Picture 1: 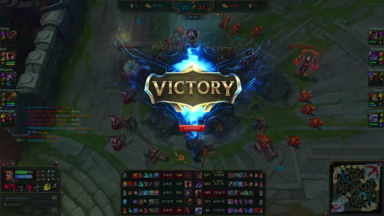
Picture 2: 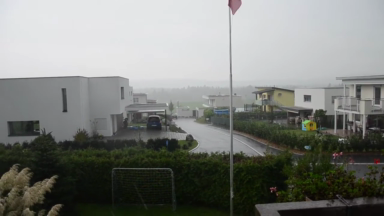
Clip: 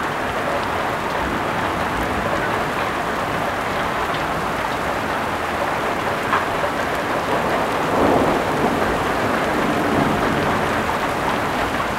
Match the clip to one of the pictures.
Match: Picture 2